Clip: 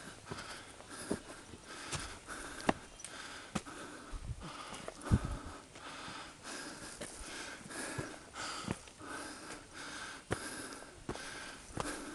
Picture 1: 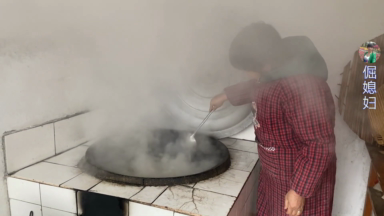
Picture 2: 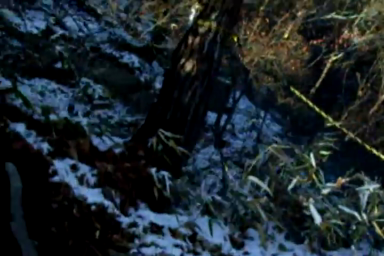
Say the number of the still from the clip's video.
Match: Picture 2